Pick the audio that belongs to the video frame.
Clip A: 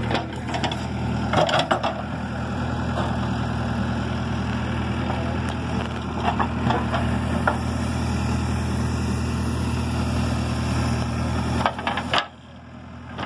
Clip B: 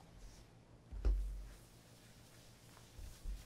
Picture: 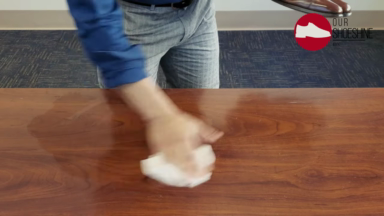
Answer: B